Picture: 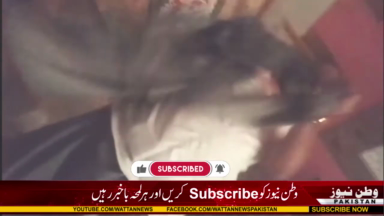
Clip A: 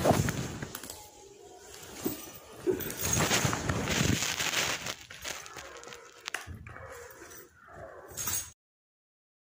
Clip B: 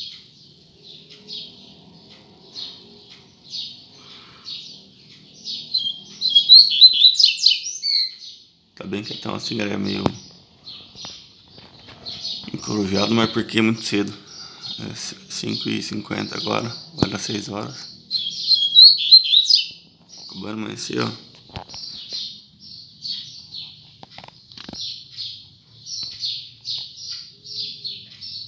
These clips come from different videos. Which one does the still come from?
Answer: A